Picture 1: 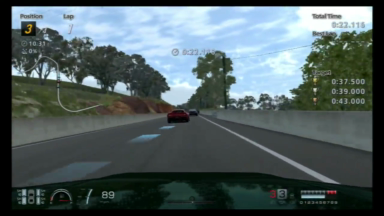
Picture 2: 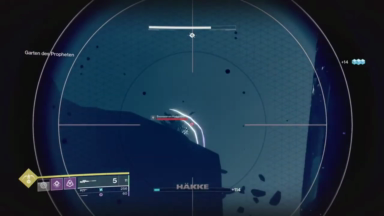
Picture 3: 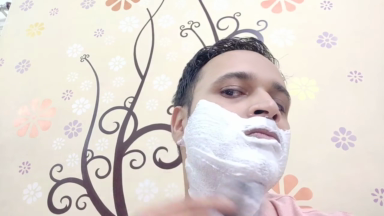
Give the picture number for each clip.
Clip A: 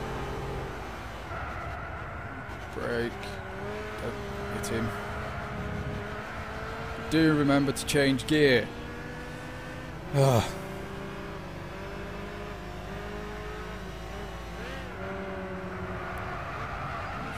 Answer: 1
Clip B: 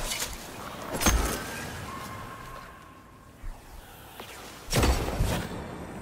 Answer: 2